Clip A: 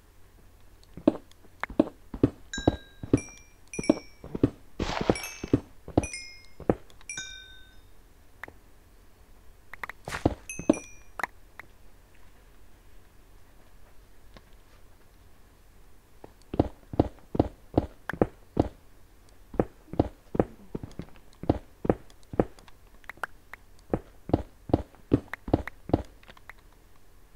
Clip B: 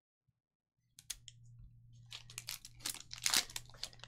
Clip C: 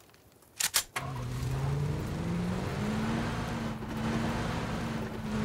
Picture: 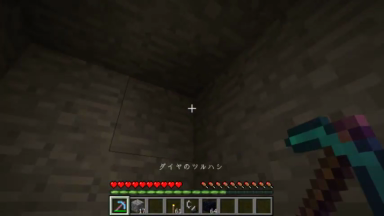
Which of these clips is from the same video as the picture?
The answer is A